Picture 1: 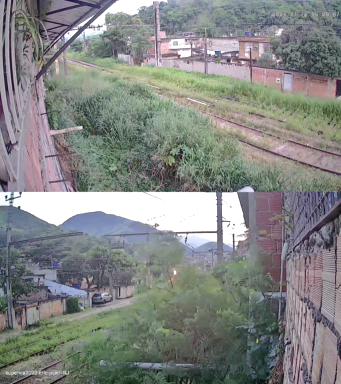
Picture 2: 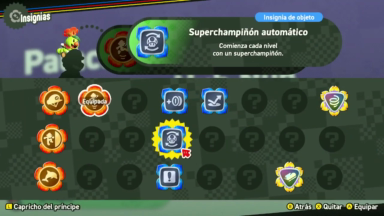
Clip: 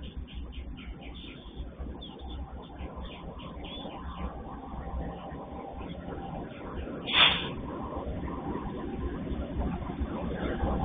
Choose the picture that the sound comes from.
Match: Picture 1